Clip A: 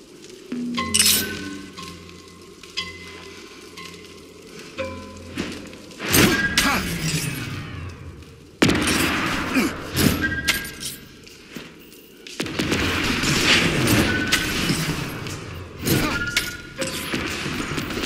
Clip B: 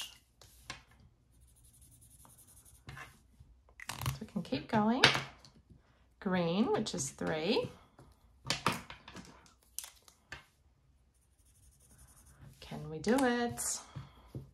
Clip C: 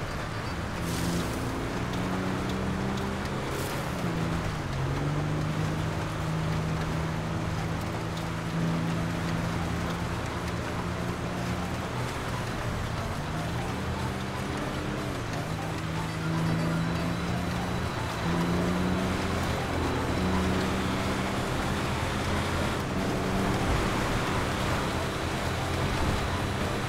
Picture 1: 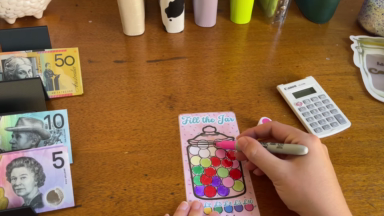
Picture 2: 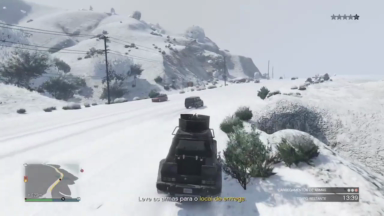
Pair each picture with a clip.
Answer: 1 B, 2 C